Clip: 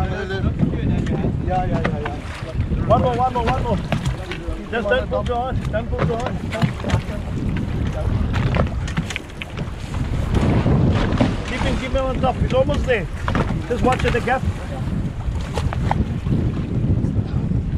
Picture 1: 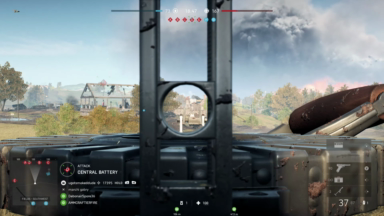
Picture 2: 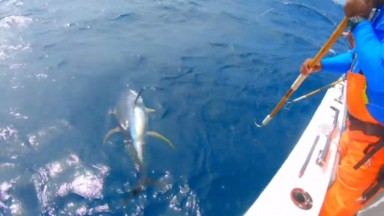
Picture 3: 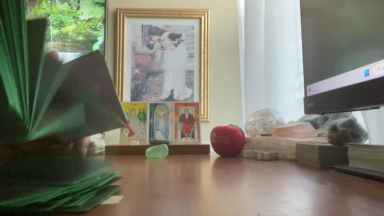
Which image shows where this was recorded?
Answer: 2